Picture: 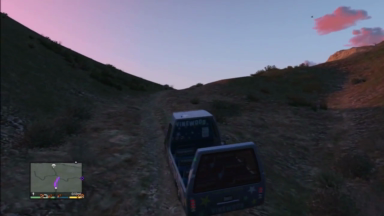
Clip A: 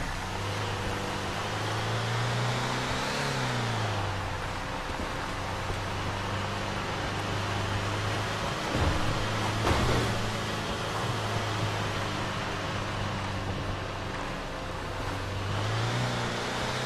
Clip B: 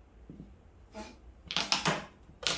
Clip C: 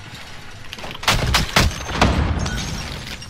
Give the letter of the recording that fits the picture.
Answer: A